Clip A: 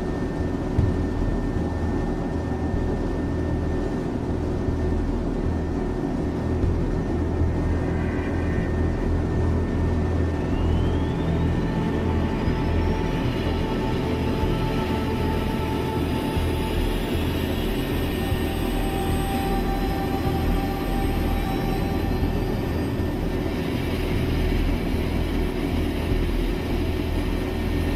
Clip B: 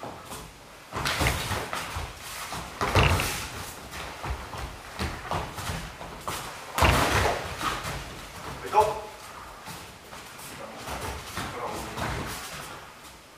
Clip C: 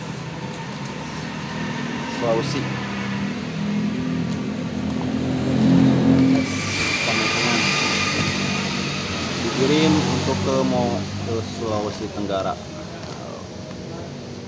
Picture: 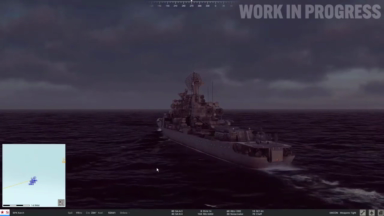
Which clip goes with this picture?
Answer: A